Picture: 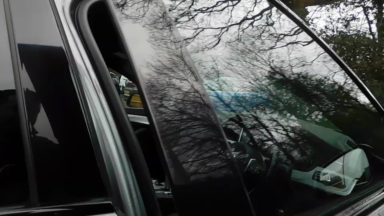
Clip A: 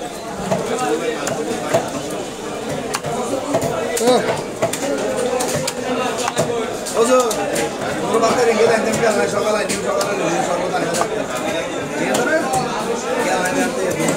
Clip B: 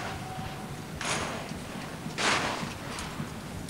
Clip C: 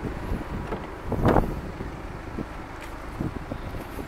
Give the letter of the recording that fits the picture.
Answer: C